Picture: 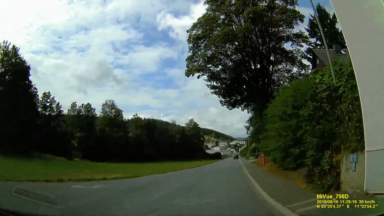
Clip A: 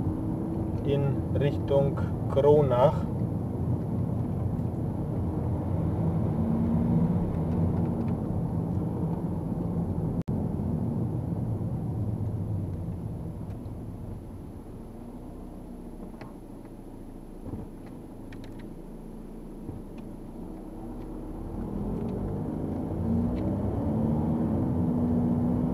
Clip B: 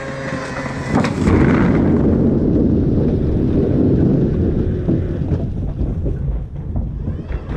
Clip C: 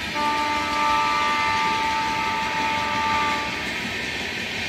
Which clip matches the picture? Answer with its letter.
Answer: A